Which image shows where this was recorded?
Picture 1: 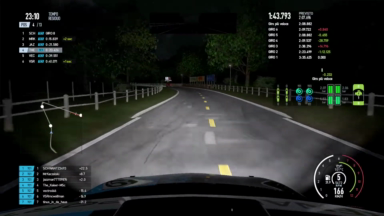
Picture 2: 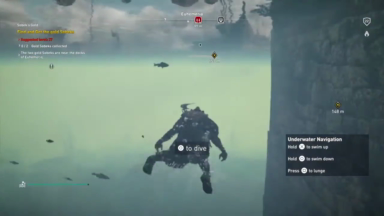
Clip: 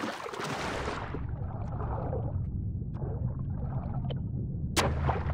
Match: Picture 2